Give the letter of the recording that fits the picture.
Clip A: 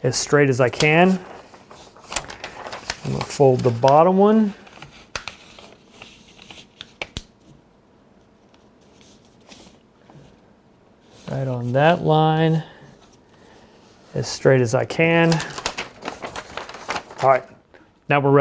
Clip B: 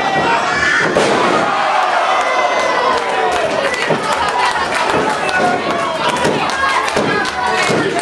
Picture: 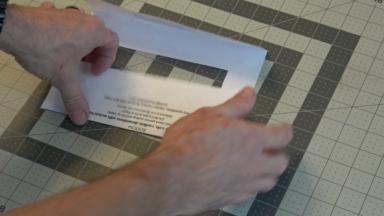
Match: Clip A